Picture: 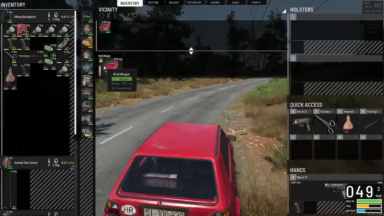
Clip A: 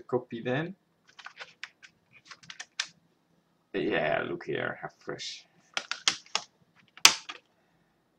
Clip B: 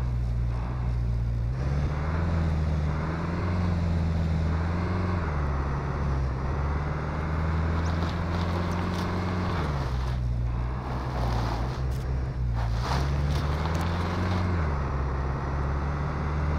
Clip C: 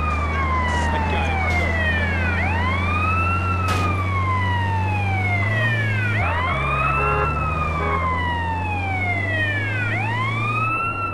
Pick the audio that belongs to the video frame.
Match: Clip B